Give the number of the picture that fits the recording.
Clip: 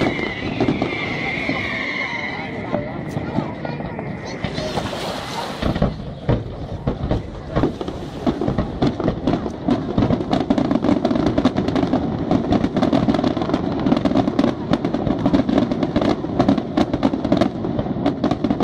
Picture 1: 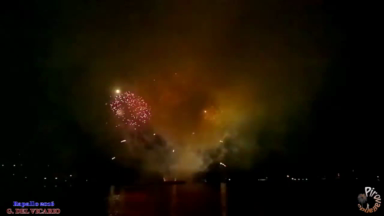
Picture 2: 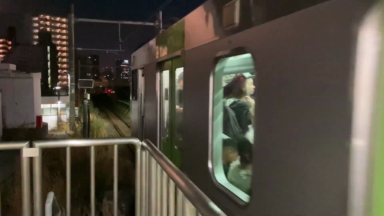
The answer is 1